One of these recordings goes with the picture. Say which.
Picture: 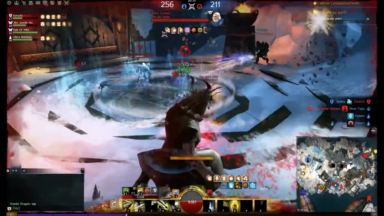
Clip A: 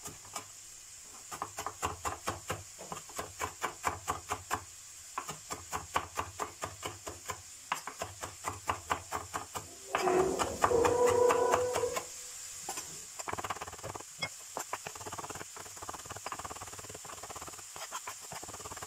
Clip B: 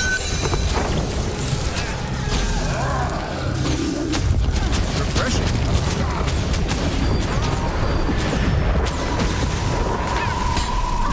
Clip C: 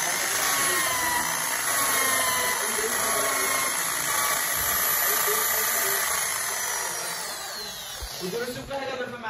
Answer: B